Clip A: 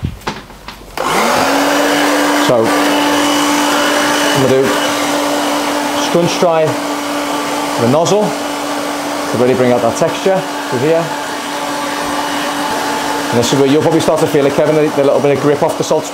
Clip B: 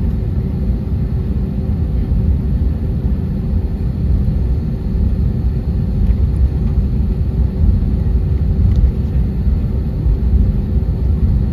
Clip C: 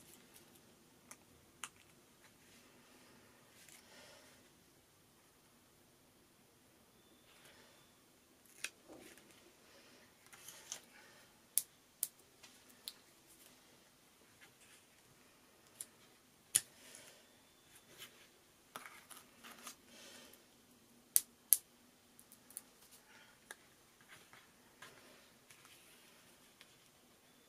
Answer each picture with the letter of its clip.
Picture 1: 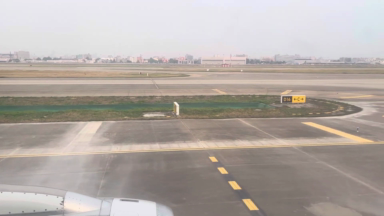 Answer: B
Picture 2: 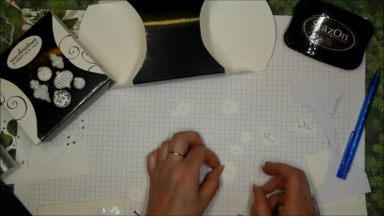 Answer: C